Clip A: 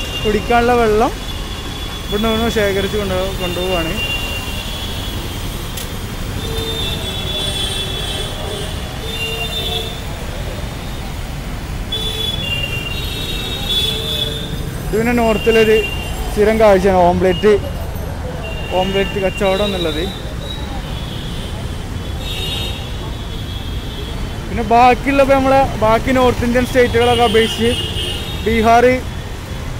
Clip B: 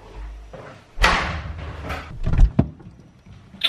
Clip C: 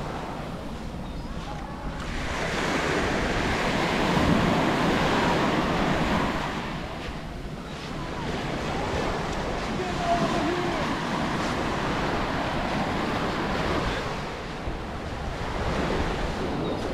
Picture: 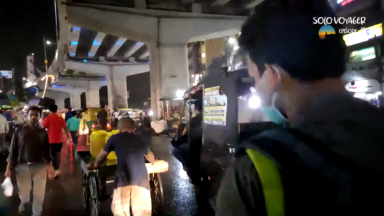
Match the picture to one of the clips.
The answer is A